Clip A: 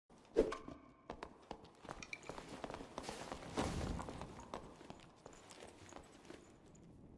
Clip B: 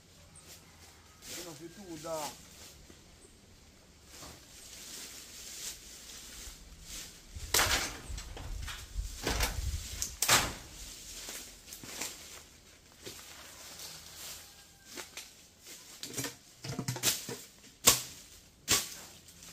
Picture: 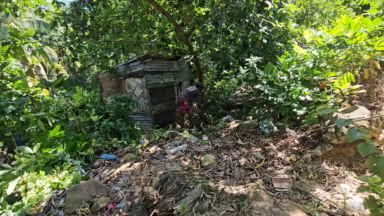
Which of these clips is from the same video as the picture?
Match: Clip B